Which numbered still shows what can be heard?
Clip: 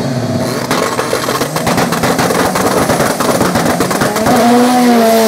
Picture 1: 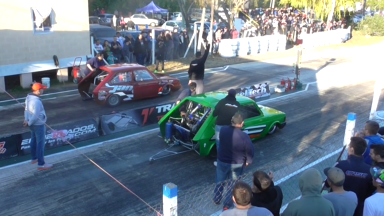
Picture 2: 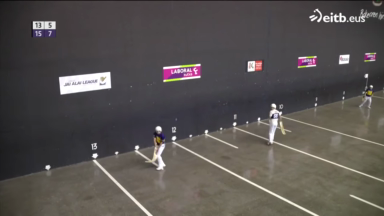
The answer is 1